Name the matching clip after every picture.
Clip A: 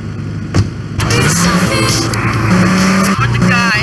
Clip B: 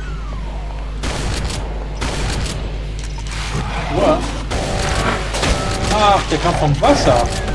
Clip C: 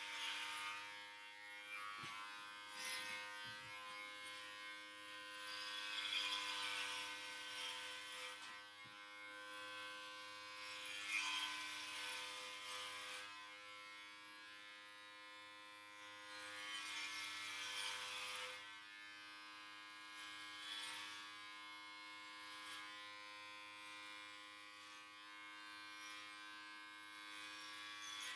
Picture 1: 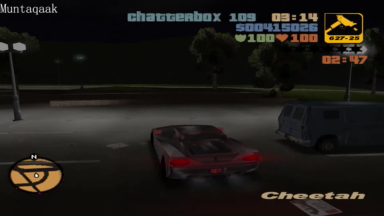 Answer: A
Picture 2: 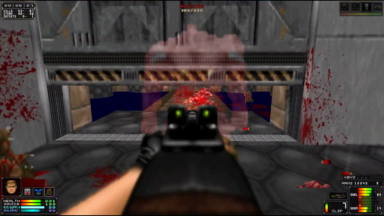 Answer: B